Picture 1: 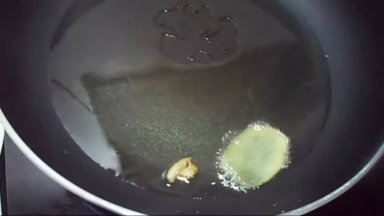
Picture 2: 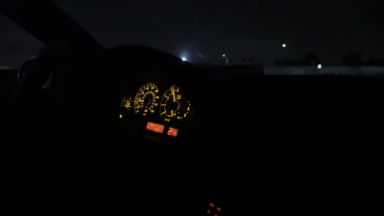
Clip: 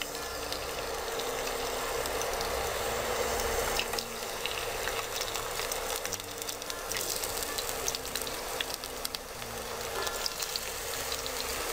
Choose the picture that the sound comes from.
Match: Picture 1